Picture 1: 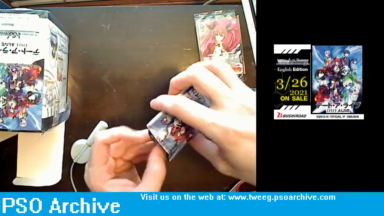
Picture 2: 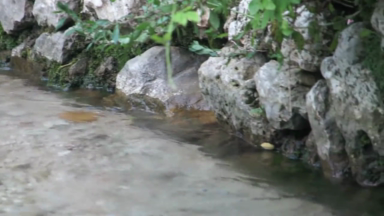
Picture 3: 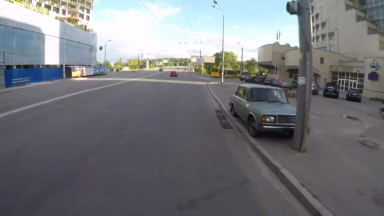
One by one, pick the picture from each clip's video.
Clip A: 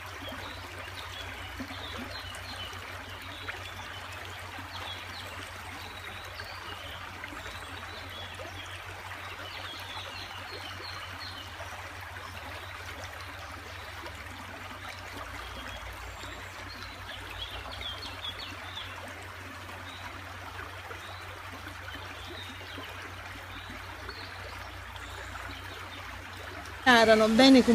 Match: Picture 2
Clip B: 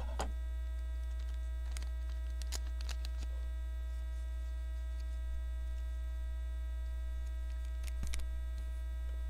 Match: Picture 1